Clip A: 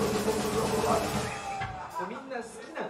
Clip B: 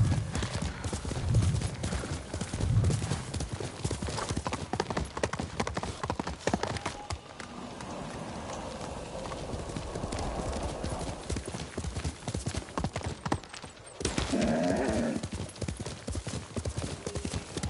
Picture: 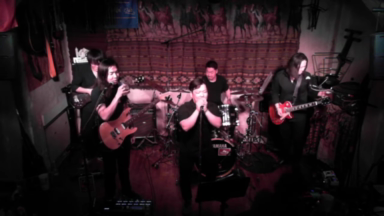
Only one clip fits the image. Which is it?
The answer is A